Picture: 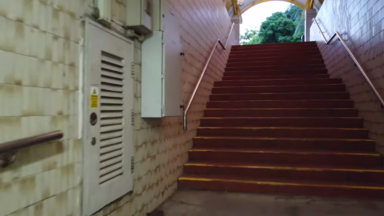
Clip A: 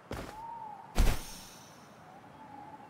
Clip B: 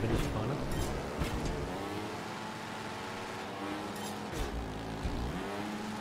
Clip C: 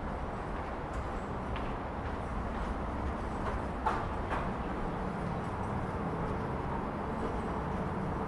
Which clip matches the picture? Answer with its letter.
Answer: C